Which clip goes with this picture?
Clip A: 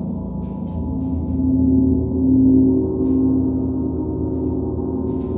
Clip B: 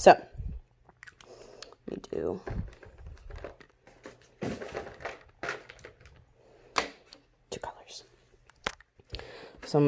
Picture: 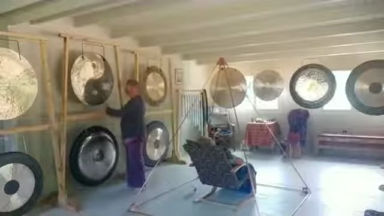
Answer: A